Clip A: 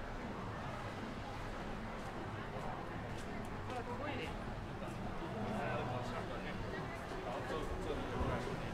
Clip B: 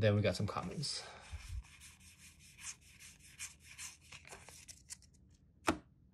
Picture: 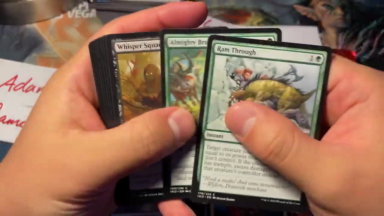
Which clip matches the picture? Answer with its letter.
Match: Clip B